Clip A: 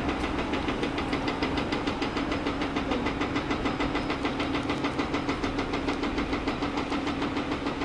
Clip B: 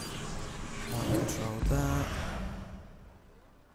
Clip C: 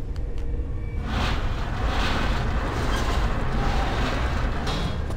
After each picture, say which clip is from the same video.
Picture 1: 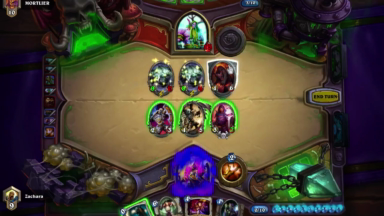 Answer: B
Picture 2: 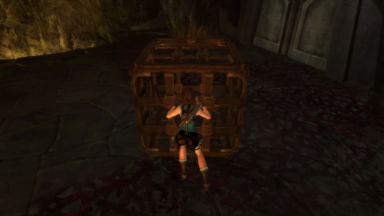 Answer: C